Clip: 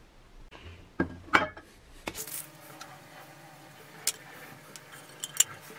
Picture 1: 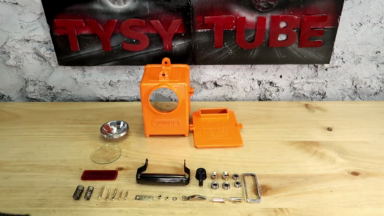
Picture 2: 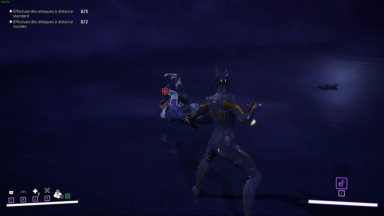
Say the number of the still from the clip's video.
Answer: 1